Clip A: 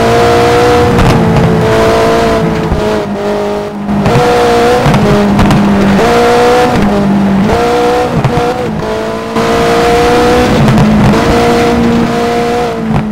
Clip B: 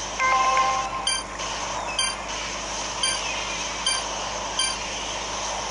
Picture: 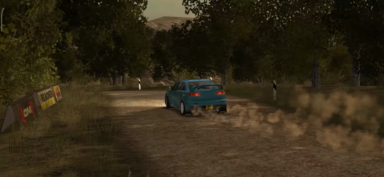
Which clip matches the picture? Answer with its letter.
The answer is A